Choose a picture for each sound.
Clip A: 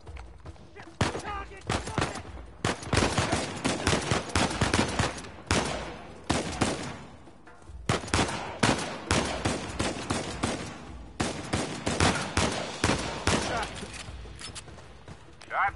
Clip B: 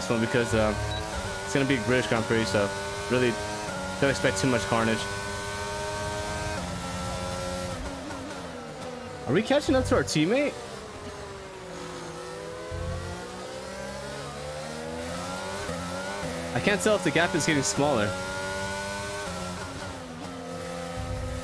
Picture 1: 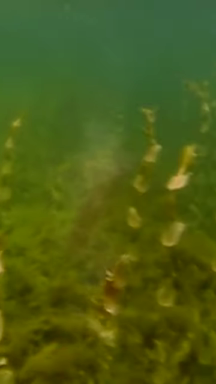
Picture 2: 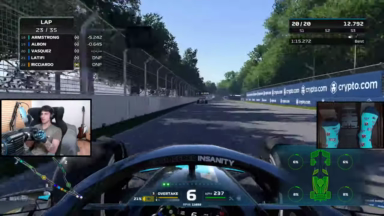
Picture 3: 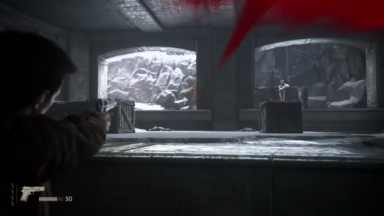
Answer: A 3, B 2